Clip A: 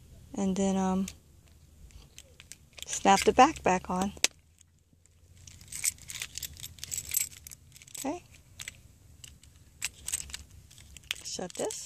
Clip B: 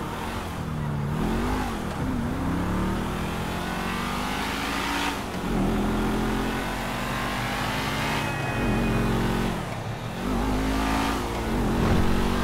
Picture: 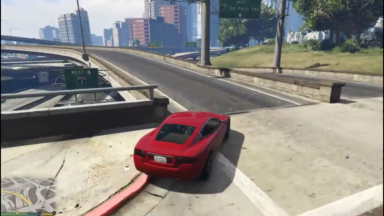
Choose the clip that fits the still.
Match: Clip B